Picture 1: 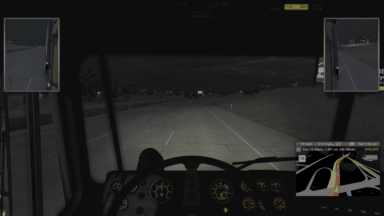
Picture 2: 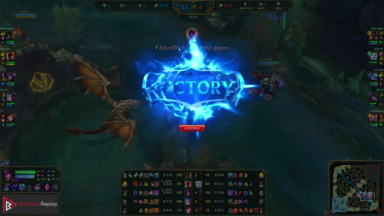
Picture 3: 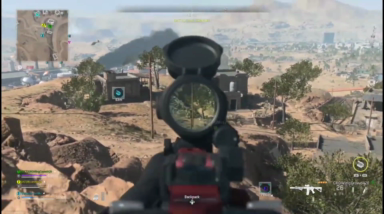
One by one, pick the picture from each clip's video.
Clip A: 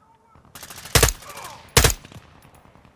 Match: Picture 3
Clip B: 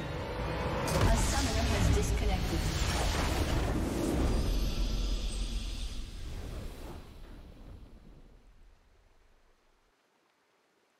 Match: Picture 2